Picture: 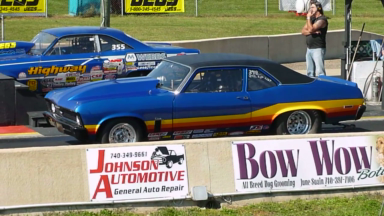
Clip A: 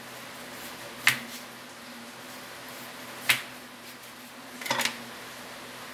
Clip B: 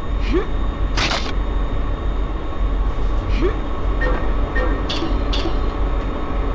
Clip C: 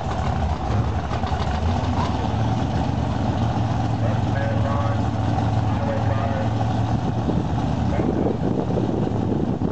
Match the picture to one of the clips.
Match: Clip C